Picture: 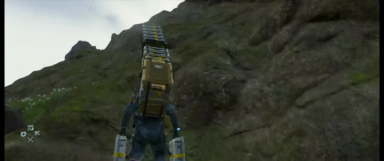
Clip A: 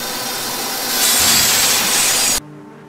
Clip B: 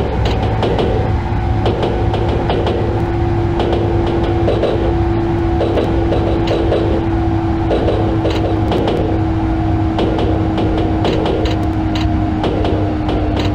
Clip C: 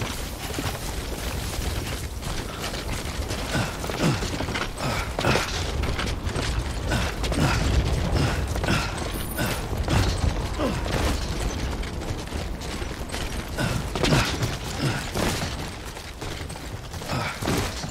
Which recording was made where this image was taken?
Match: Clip C